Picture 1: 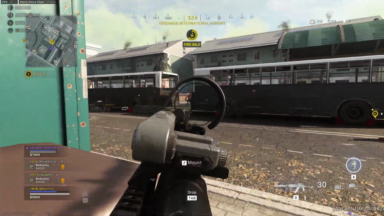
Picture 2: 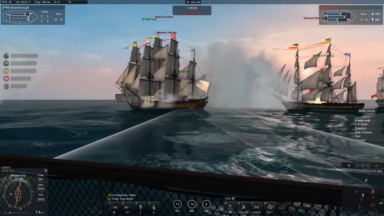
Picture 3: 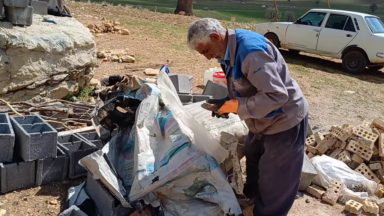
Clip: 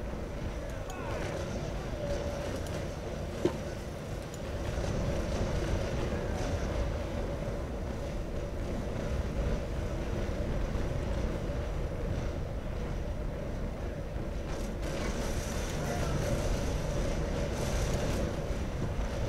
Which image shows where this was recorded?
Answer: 2